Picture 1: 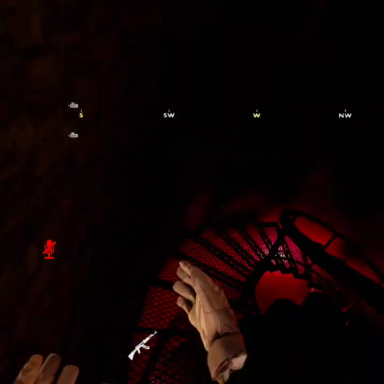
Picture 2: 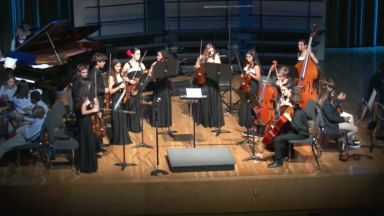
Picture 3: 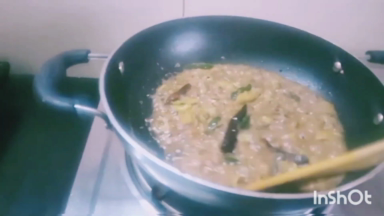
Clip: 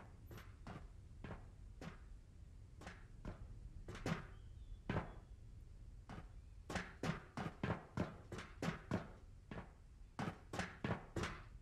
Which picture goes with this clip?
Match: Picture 1